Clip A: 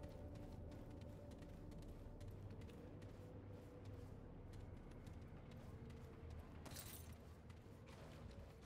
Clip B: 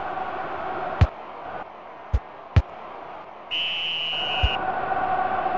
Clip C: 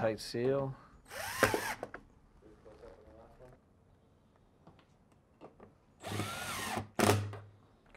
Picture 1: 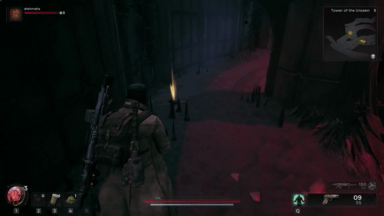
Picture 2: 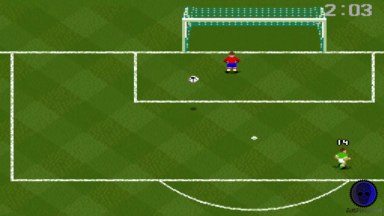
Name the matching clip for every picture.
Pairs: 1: A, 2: B